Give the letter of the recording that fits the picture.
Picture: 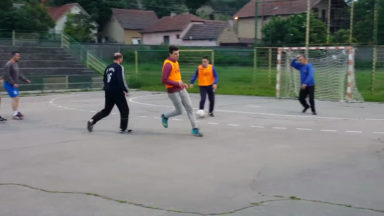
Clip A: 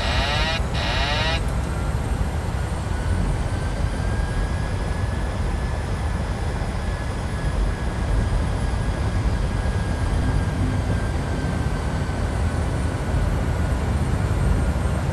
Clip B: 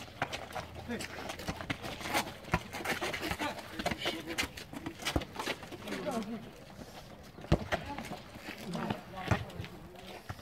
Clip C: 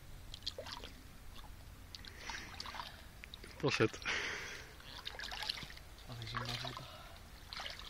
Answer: B